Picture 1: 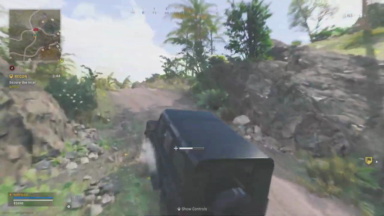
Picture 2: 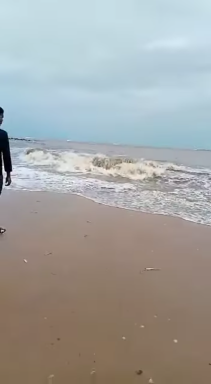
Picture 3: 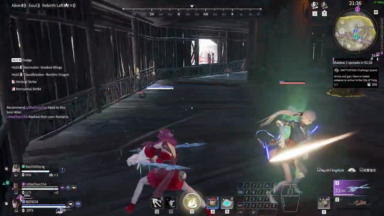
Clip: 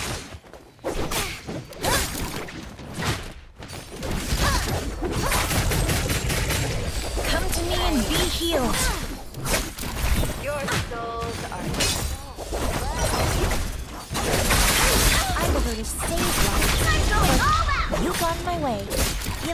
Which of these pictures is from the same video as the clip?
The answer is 3